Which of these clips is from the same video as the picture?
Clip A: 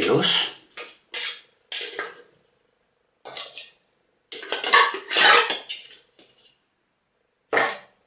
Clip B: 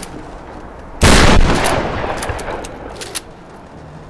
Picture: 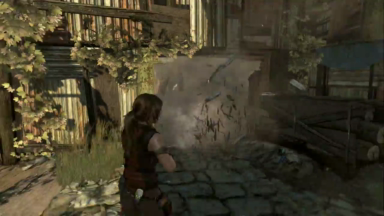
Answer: B